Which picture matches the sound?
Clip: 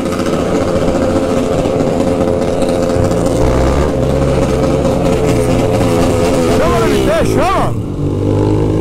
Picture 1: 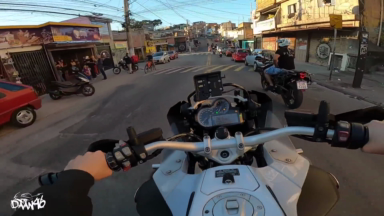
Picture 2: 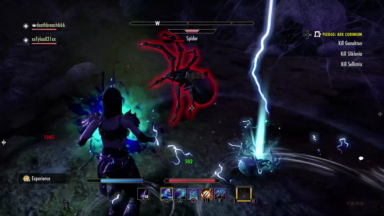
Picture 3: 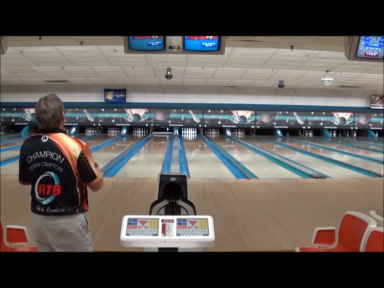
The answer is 1